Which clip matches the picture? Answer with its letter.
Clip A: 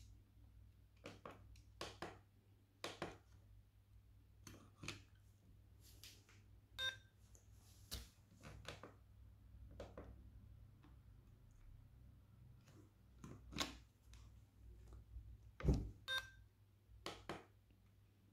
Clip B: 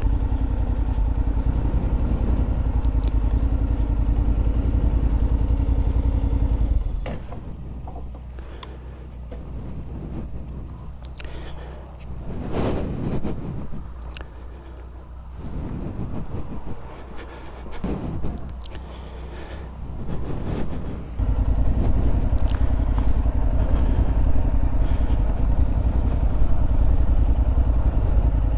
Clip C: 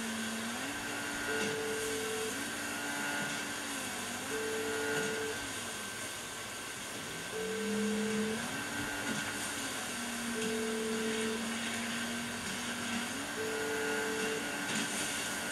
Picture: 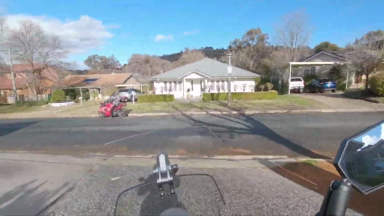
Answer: B